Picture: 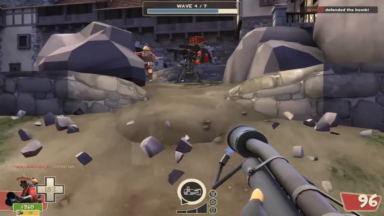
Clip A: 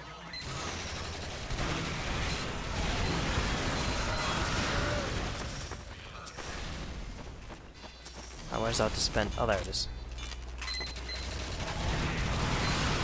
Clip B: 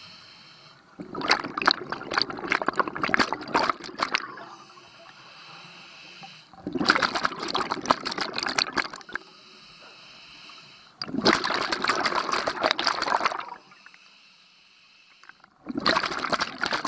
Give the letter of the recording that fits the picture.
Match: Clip A